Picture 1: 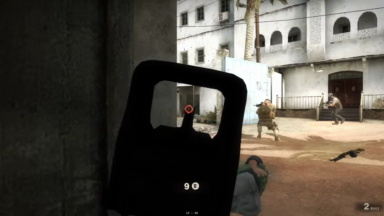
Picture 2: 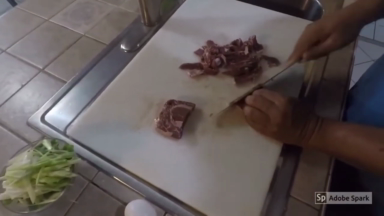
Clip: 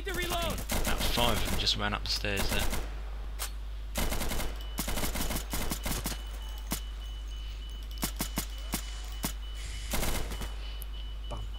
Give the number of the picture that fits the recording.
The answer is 1